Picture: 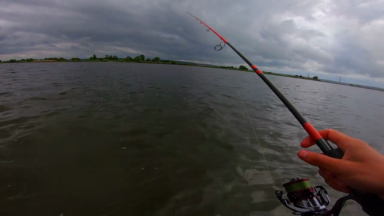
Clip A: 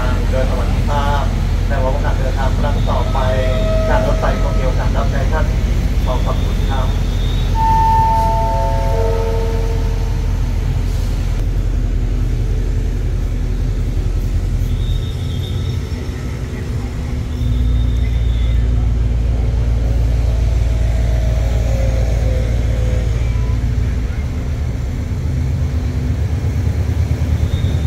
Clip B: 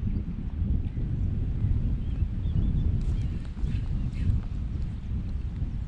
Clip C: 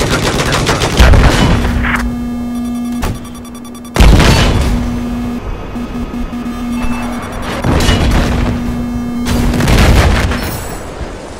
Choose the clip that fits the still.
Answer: B